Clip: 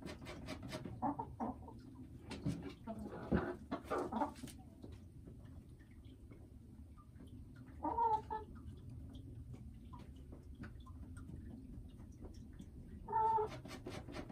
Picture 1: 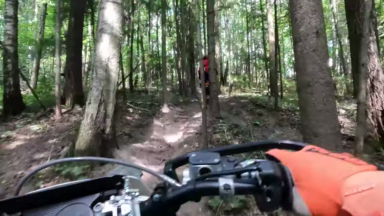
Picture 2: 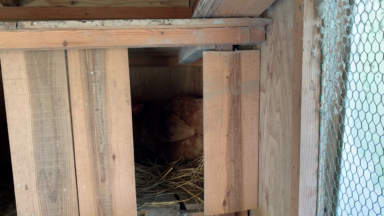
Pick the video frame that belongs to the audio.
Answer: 2